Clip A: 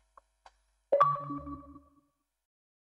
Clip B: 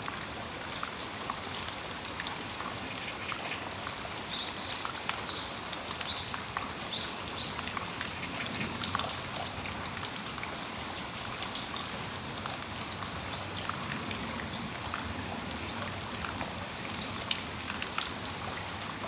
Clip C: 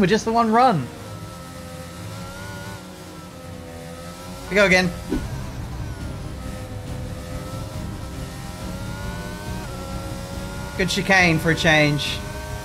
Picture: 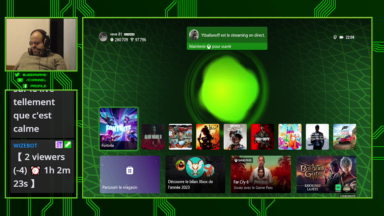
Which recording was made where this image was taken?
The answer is A